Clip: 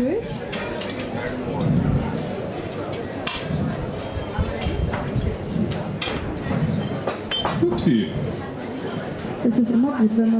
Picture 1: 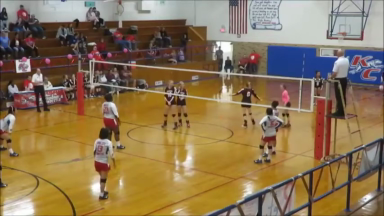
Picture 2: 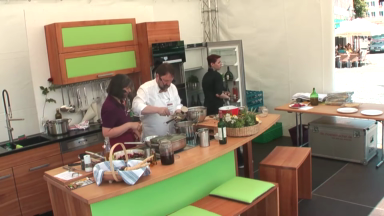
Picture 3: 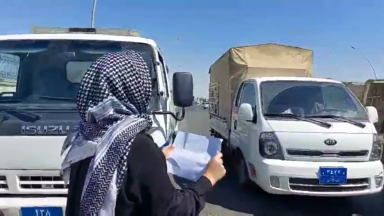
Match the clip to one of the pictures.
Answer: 2